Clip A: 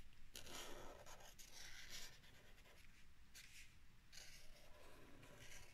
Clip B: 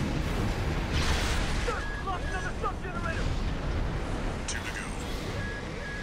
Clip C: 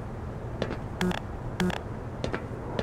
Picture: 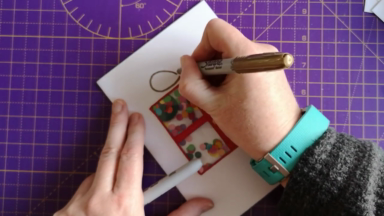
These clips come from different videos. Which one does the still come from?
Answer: A